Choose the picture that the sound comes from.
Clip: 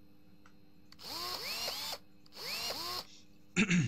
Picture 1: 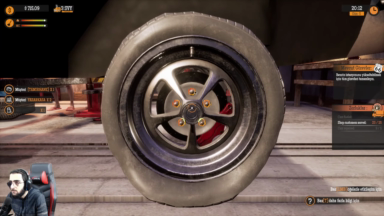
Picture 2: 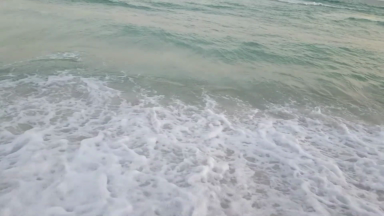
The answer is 1